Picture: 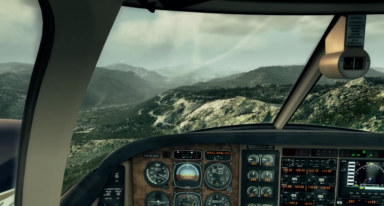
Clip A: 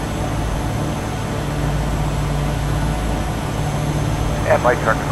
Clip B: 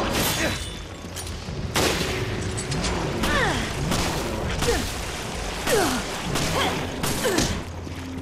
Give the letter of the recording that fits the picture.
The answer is A